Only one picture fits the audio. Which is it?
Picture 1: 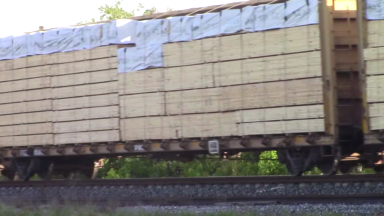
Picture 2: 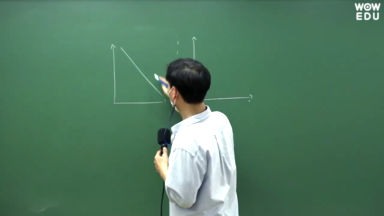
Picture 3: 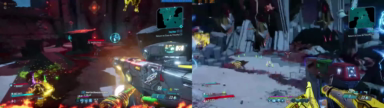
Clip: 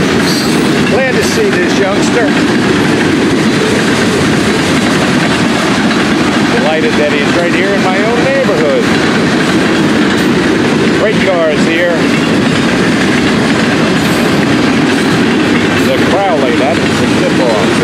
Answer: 1